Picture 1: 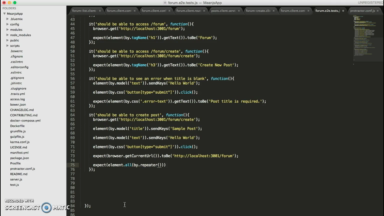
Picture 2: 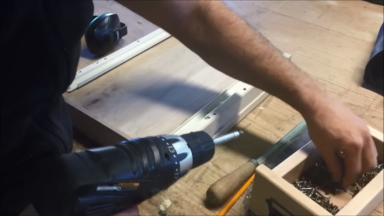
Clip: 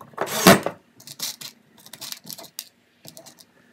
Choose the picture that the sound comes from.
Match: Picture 2